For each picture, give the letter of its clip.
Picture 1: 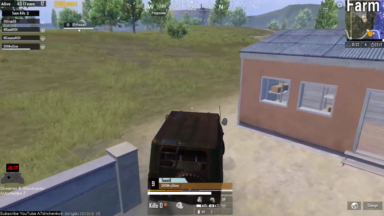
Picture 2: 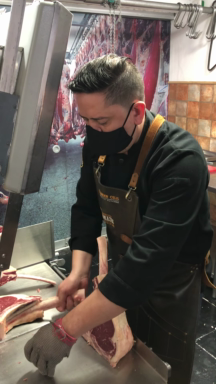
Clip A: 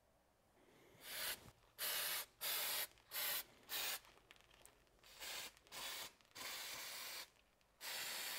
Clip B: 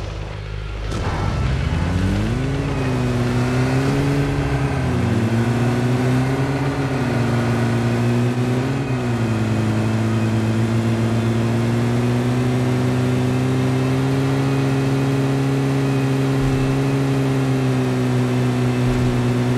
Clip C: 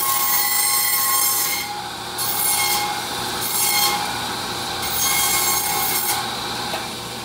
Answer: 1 B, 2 C